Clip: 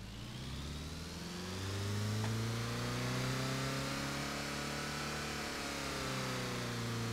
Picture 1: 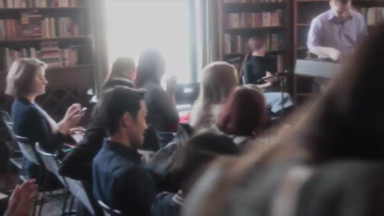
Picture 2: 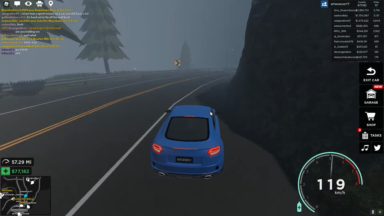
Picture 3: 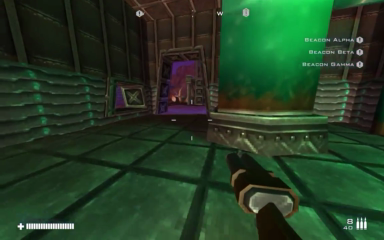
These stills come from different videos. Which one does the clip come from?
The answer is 2